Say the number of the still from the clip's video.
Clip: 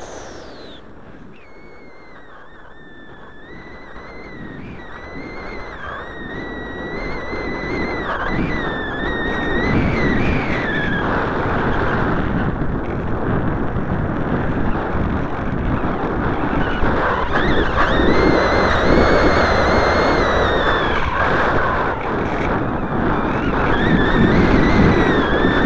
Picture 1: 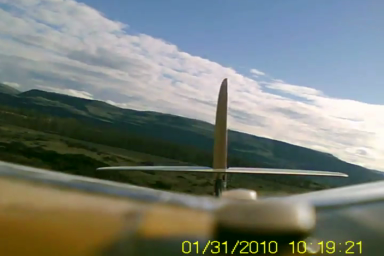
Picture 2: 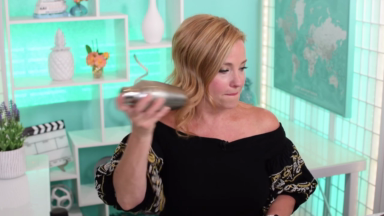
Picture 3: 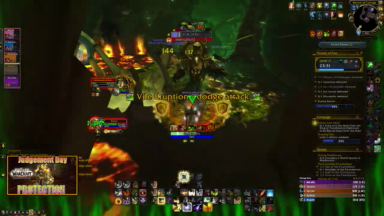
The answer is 1